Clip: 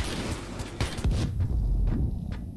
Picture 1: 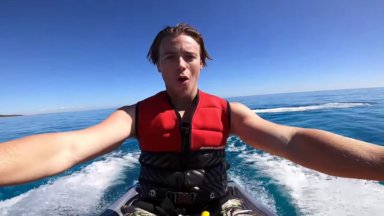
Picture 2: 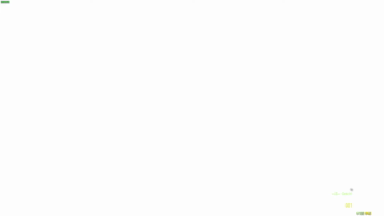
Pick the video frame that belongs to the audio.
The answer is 2